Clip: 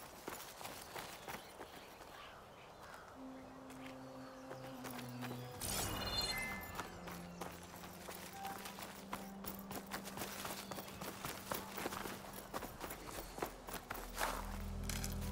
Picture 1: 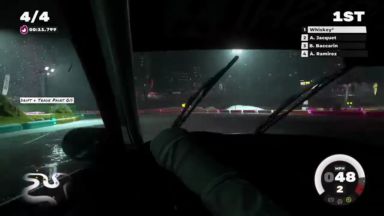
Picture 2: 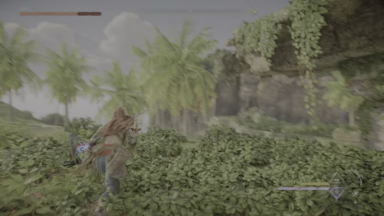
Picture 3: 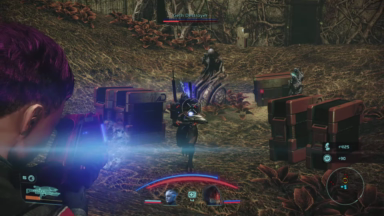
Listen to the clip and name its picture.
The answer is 2